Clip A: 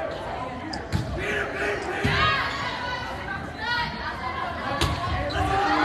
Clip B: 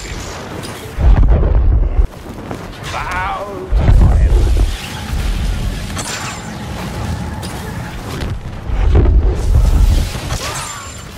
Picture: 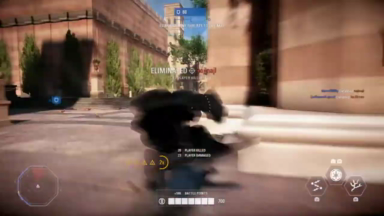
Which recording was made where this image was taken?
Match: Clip B